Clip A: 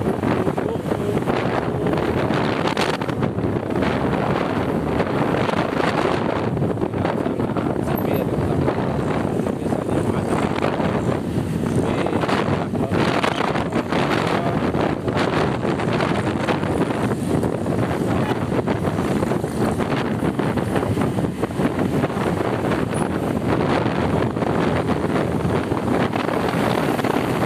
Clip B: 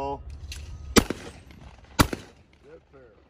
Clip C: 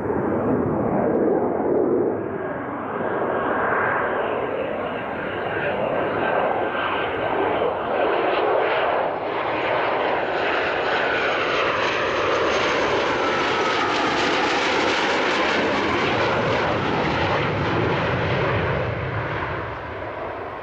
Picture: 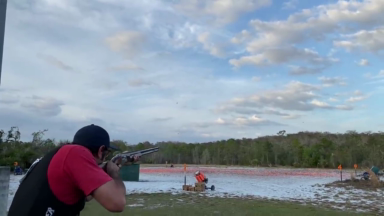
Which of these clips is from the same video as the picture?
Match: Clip B